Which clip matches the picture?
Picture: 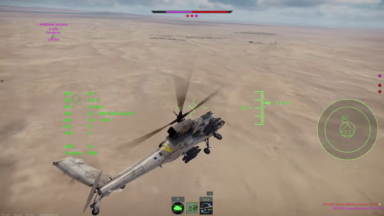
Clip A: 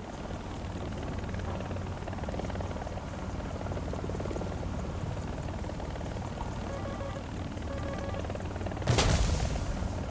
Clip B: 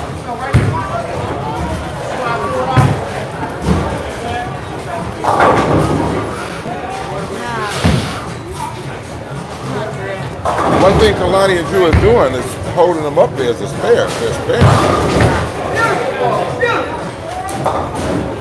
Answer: A